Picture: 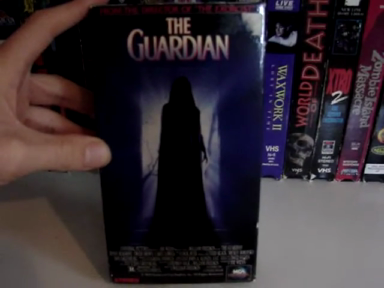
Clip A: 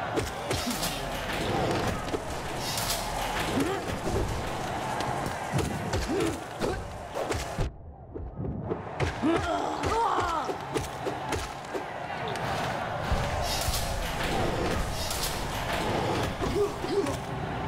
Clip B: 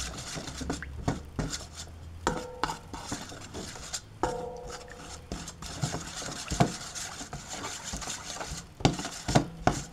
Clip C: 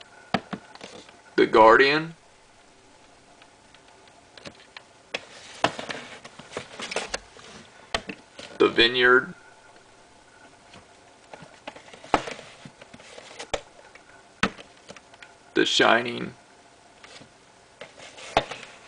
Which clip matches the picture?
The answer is C